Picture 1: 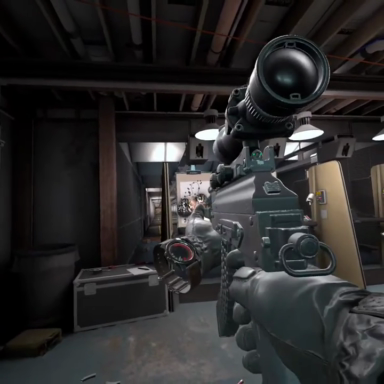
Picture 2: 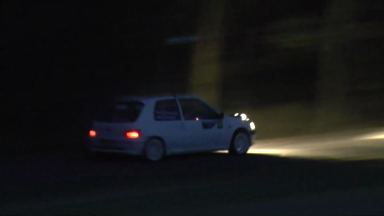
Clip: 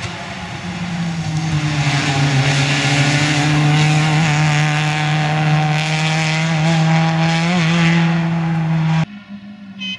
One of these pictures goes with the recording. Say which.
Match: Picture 2